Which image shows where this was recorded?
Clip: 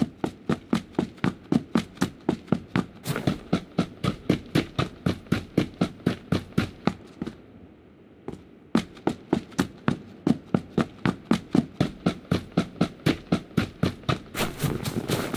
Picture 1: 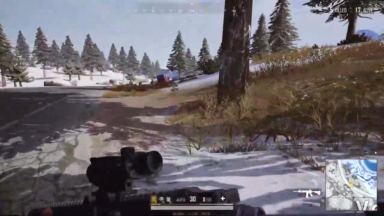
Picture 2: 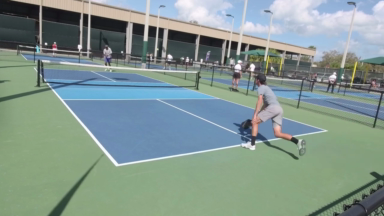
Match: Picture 1